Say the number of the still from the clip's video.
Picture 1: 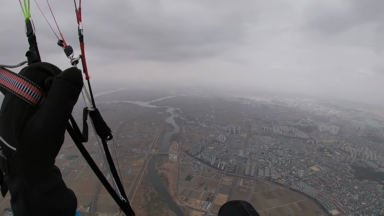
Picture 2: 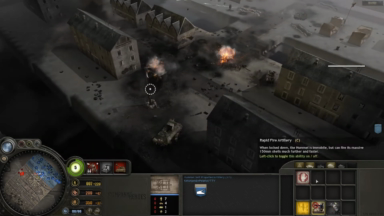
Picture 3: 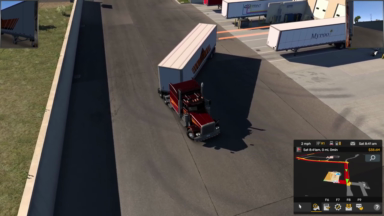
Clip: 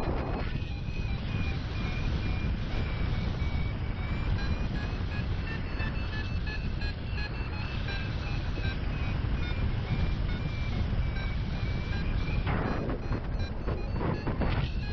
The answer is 1